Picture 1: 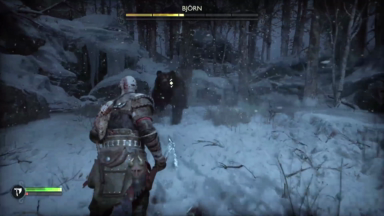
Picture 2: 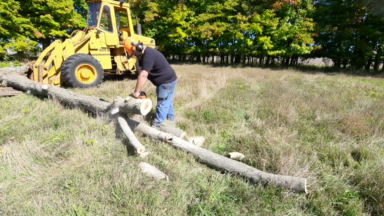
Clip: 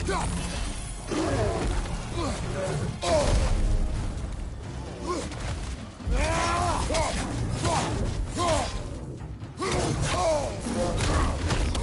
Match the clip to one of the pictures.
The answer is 1